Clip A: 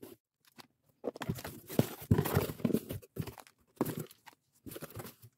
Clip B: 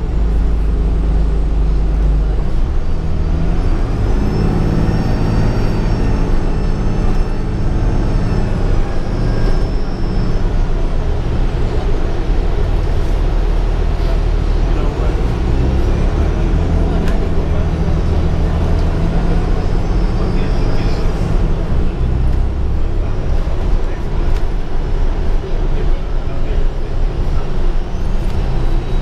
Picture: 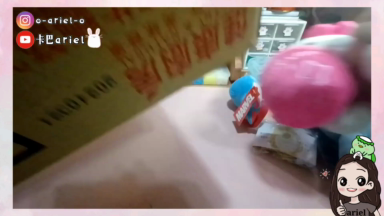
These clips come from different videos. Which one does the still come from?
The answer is A